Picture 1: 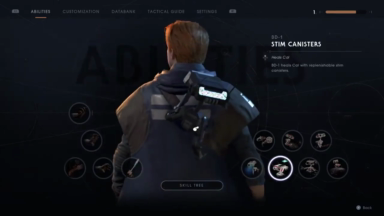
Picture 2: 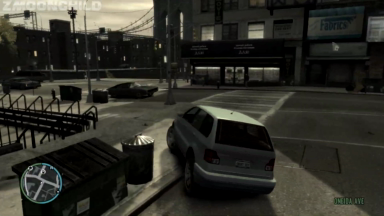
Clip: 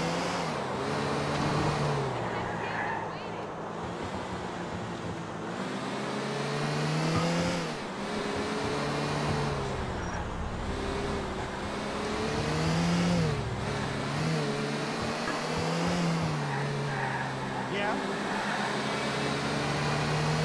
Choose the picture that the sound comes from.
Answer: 2